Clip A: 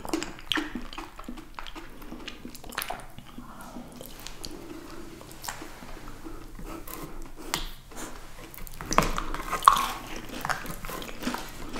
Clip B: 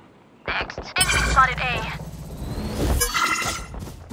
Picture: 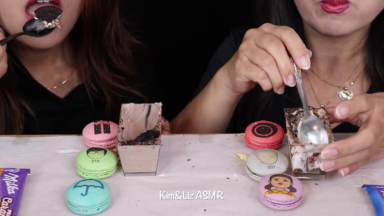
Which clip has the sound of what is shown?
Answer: A